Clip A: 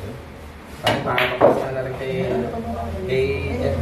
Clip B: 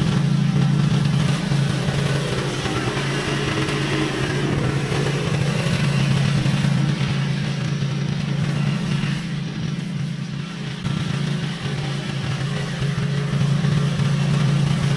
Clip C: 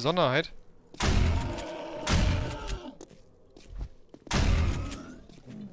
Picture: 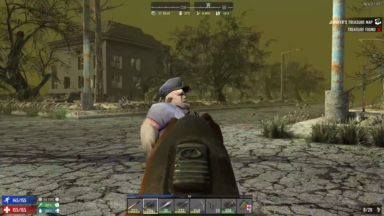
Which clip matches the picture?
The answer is C